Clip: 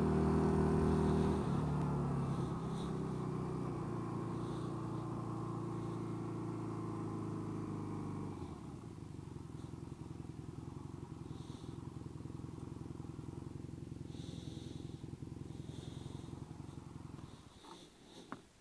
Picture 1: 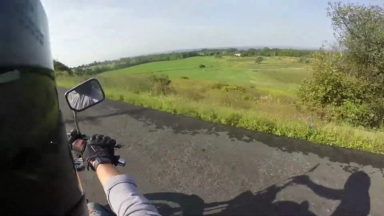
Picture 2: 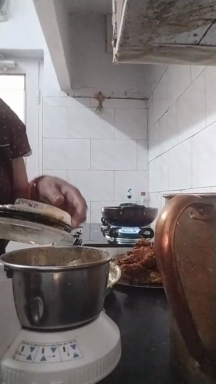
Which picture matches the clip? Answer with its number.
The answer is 1